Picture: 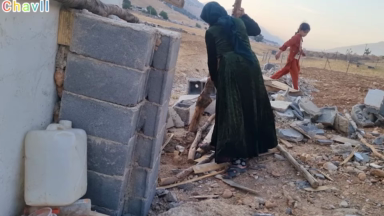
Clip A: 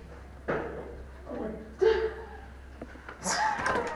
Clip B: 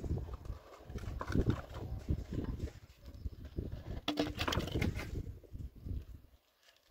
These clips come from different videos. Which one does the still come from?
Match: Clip B